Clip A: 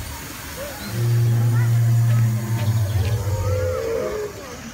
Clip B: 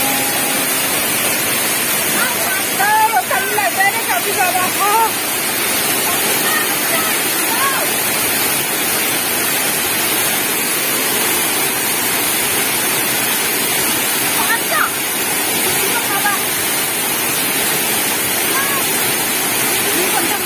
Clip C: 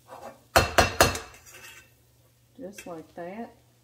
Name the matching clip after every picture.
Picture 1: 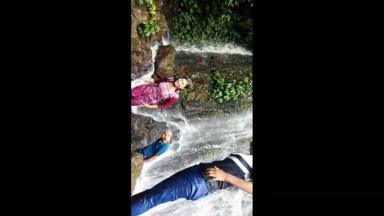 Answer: B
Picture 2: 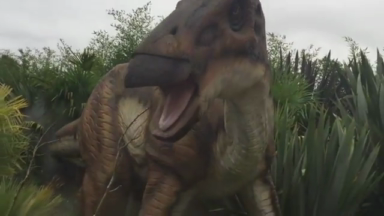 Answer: A